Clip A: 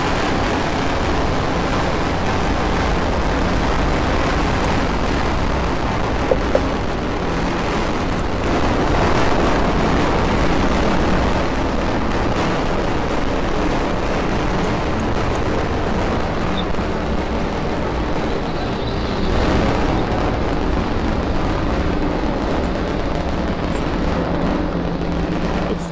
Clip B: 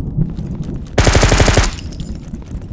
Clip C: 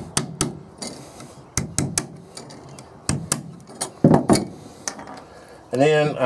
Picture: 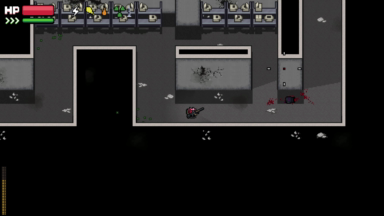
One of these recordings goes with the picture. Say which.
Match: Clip B